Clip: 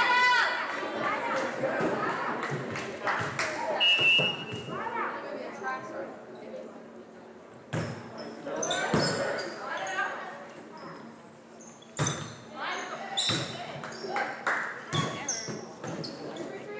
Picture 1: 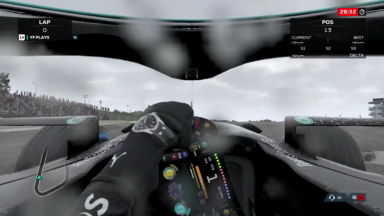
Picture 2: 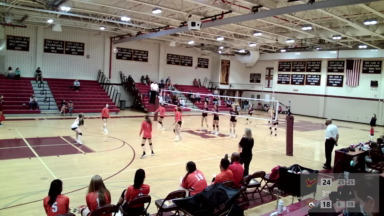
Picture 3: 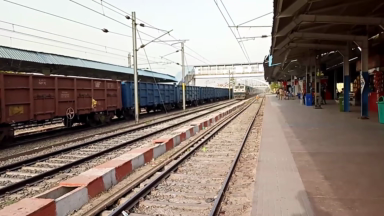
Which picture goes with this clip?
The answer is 2